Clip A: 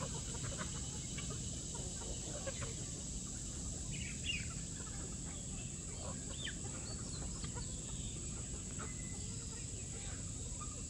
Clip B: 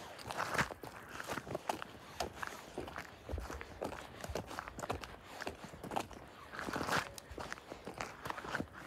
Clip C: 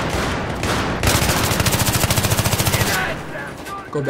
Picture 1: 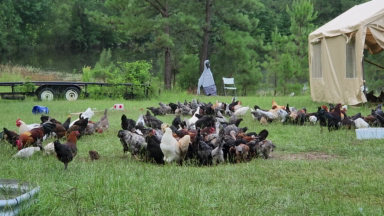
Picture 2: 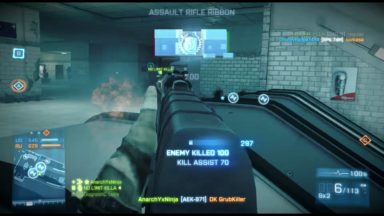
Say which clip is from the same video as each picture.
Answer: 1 A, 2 C